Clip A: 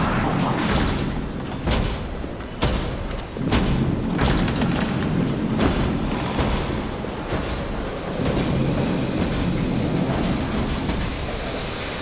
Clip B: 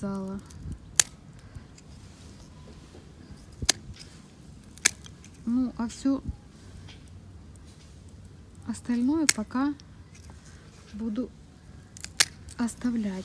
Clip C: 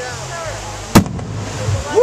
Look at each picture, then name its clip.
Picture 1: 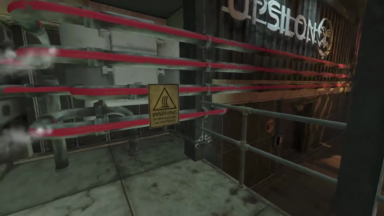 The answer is A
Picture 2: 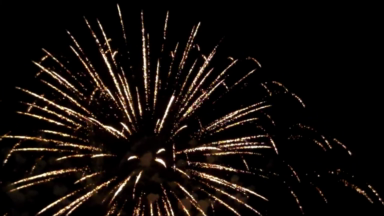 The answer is C